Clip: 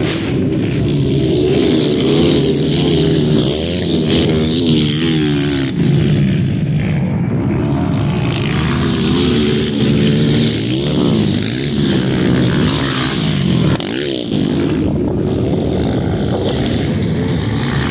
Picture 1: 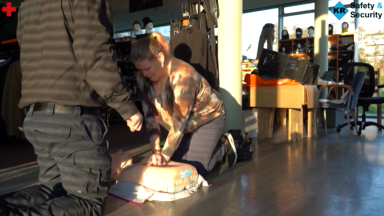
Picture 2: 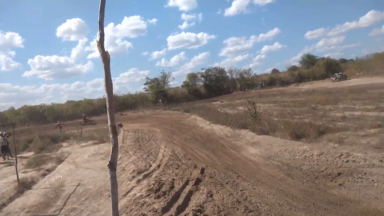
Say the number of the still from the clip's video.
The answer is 2